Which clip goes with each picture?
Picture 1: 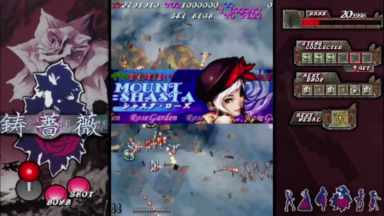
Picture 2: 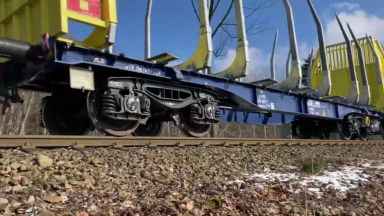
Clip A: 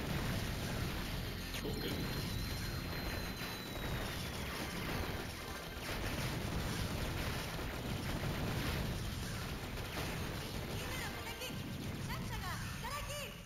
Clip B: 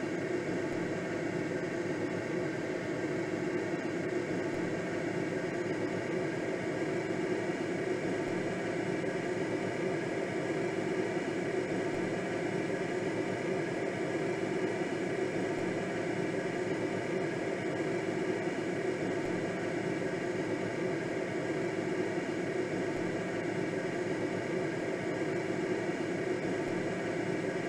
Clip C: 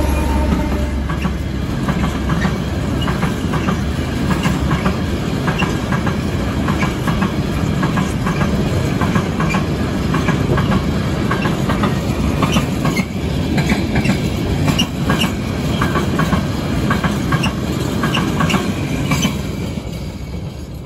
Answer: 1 A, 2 C